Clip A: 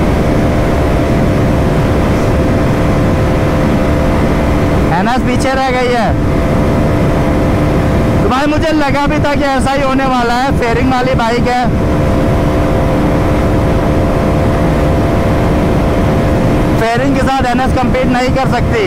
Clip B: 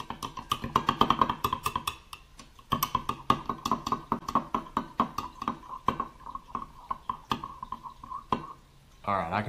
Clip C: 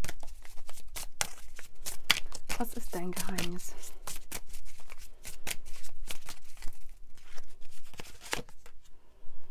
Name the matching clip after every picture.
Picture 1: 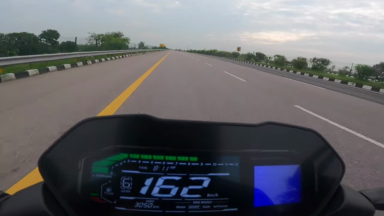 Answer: A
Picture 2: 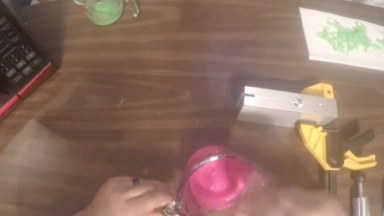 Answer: B